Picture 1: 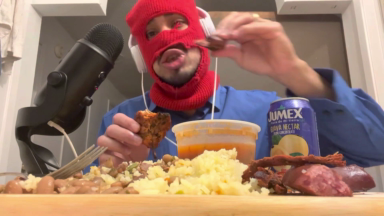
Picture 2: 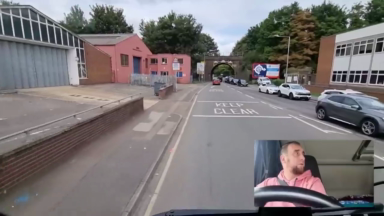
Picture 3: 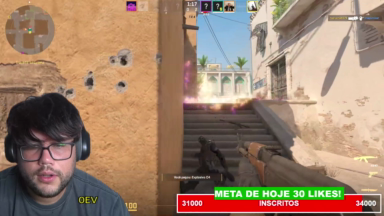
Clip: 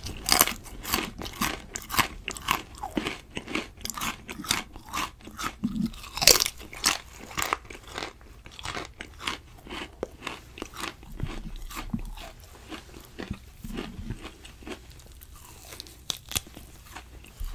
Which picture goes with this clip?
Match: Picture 1